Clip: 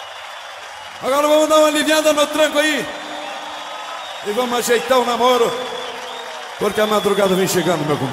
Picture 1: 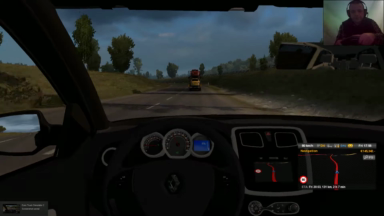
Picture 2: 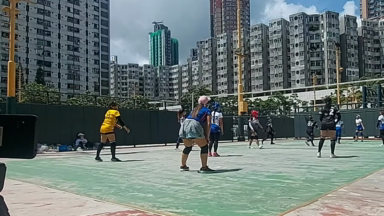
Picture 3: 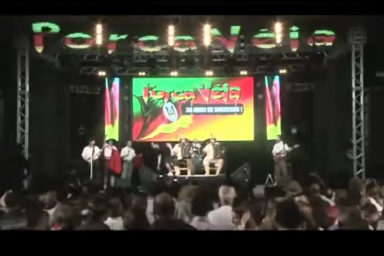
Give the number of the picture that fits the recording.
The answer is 3